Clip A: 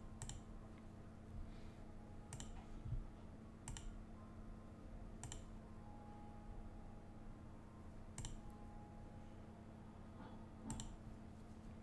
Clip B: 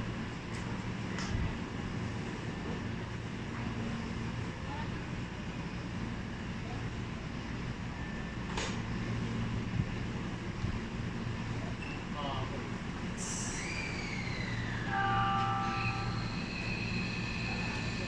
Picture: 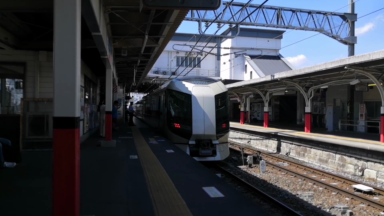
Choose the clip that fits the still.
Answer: B